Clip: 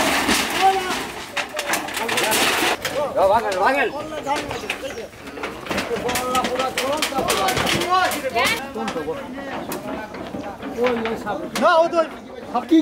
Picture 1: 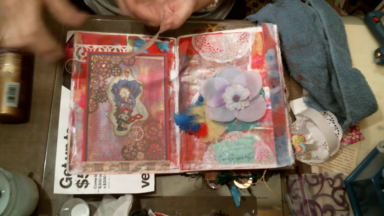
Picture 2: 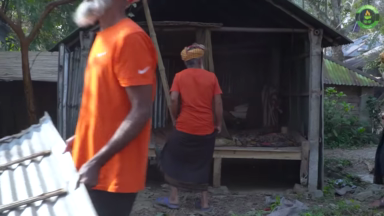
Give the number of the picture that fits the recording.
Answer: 2